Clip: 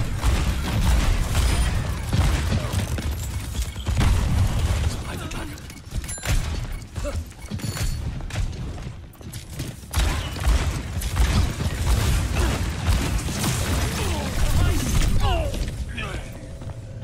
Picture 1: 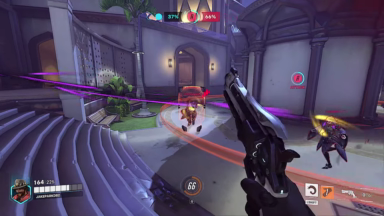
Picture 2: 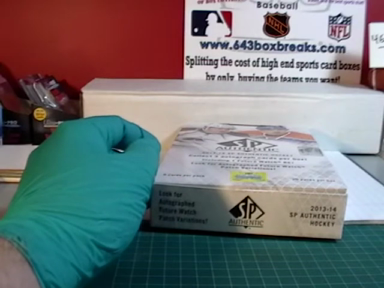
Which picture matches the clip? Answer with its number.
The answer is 1